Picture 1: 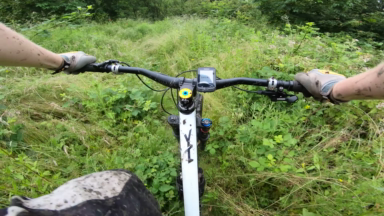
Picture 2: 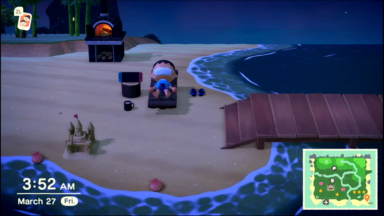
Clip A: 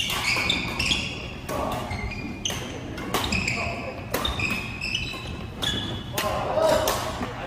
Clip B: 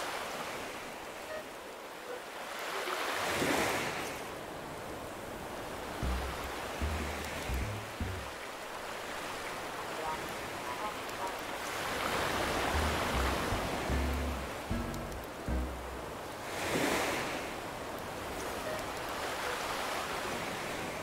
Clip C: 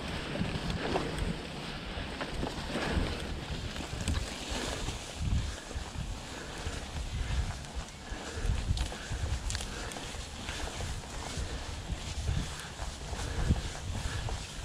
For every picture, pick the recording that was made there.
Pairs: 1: C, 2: B